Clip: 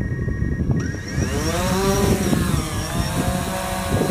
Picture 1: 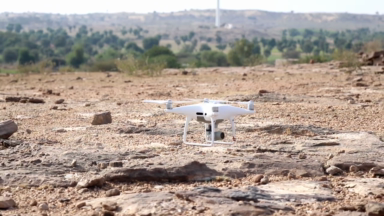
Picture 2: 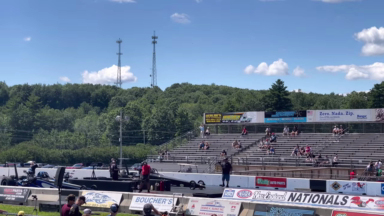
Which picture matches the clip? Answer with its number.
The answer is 1